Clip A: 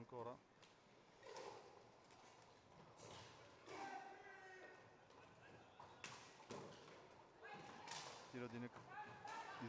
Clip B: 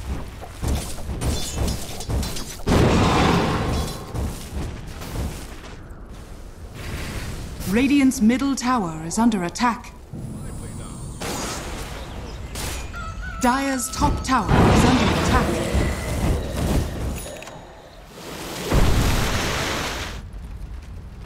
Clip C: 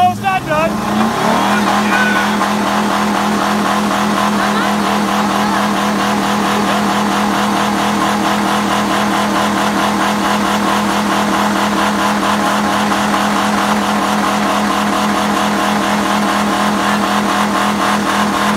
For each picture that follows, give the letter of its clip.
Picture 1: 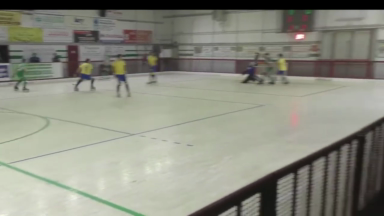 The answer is A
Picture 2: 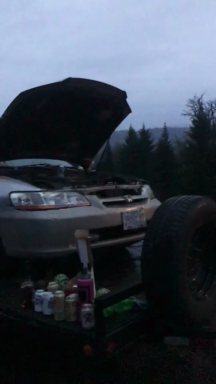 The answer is C